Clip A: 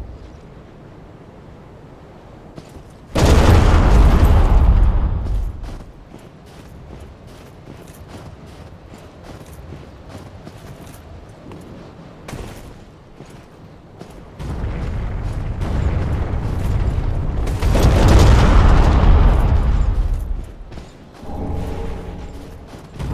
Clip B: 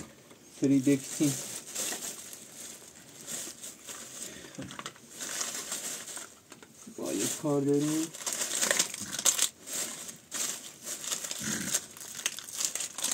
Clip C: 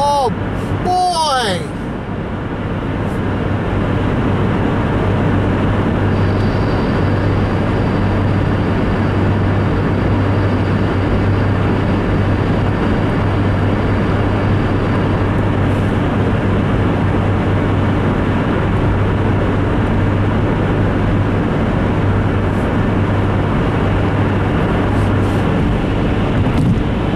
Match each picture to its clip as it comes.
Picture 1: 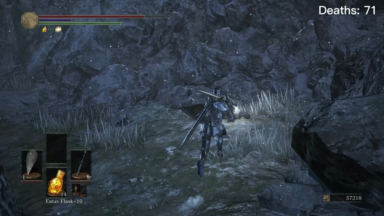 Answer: A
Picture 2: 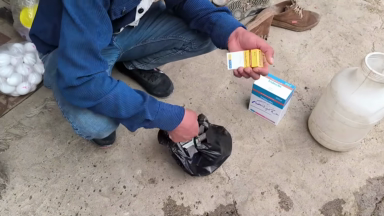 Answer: B